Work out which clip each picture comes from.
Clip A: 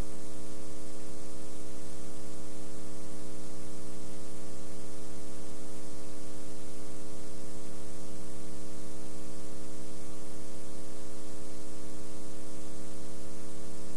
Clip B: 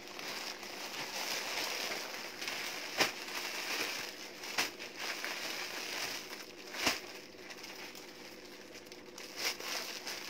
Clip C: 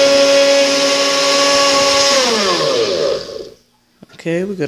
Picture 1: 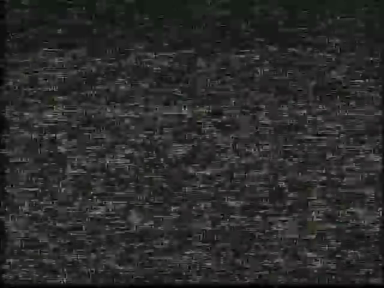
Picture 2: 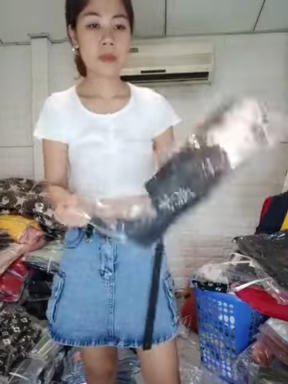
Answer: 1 A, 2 B